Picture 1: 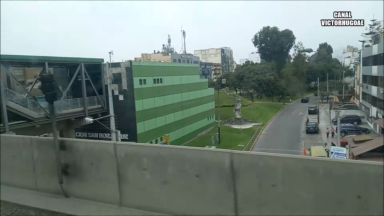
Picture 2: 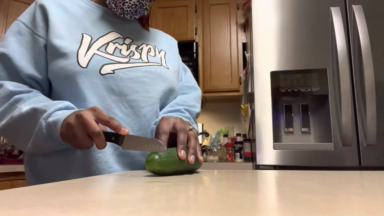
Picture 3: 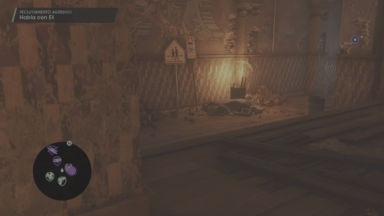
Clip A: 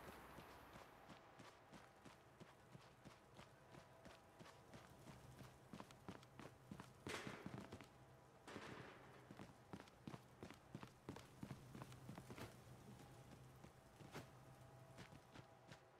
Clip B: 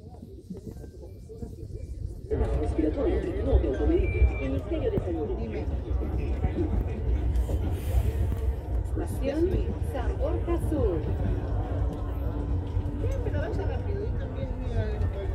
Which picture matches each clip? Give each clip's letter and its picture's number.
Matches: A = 3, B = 1